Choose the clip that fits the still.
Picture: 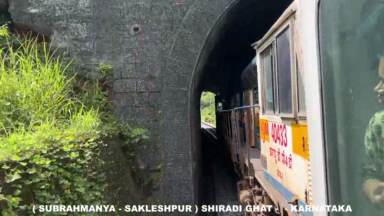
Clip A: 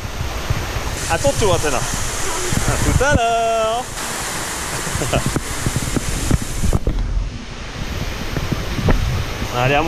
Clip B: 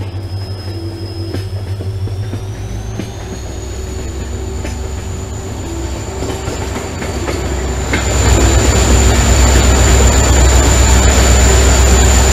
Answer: B